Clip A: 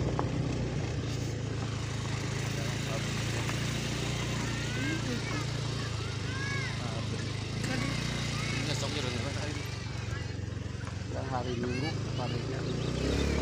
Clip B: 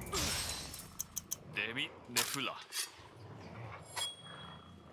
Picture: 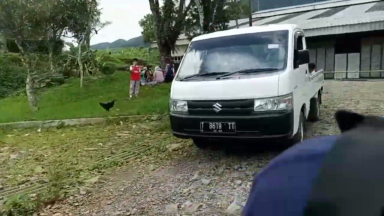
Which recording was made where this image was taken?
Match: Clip A